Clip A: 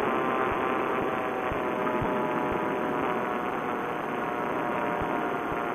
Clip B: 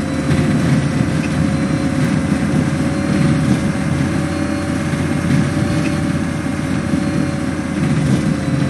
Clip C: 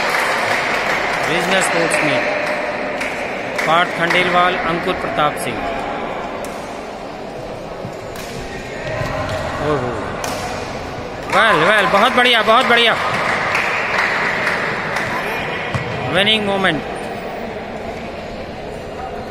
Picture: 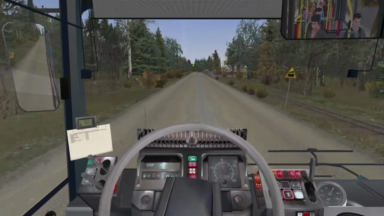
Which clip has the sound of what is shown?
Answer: B